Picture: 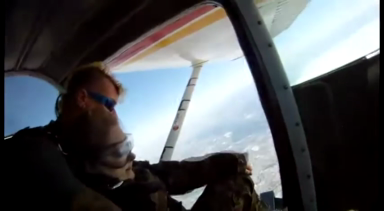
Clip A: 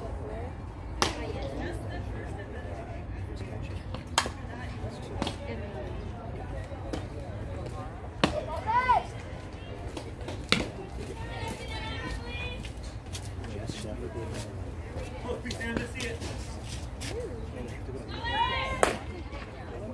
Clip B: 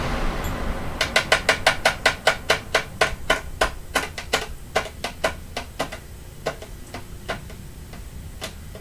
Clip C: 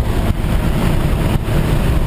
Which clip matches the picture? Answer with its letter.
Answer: C